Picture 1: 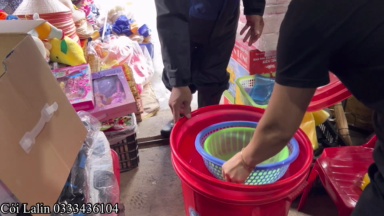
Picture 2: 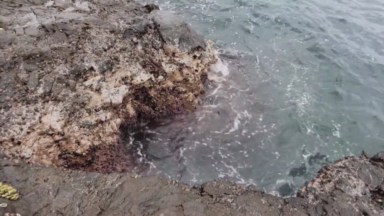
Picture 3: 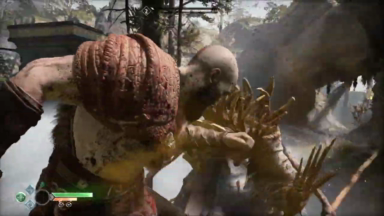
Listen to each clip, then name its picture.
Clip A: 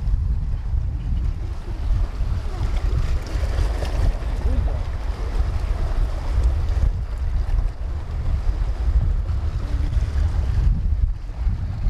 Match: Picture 2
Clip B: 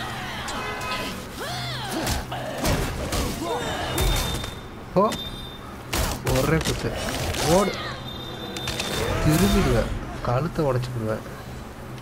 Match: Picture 3